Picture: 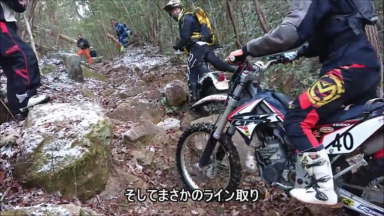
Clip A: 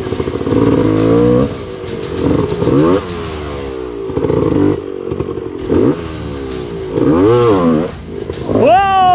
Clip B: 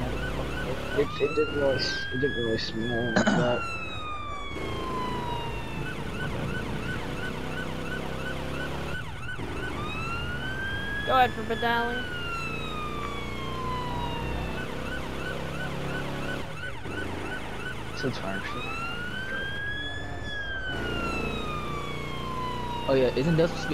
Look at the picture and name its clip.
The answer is A